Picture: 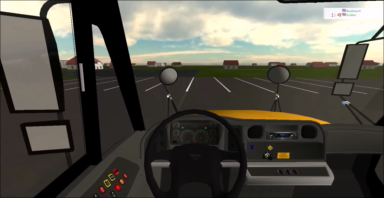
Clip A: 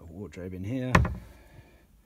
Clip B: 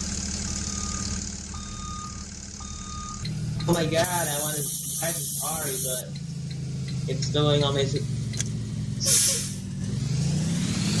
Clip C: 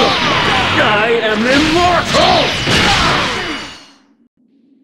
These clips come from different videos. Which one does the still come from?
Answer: B